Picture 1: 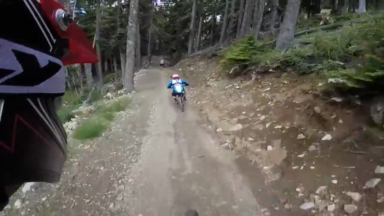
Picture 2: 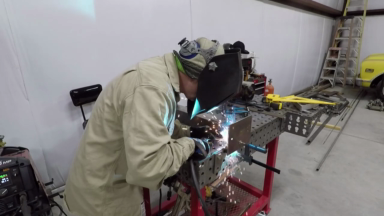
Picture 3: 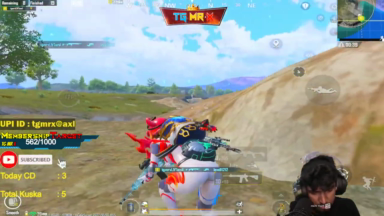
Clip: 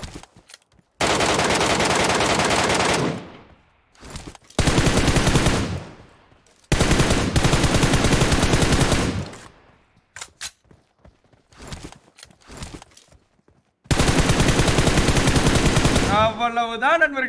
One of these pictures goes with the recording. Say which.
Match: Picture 3